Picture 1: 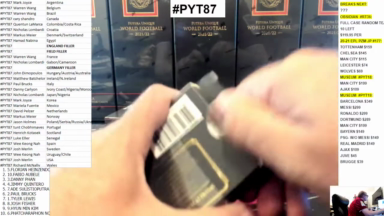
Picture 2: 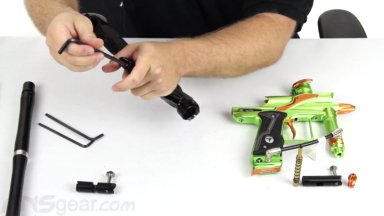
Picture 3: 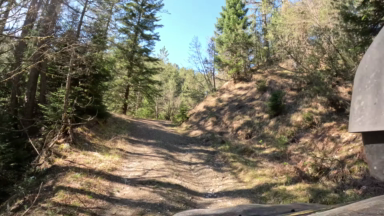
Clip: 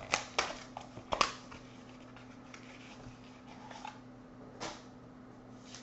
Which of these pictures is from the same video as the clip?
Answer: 1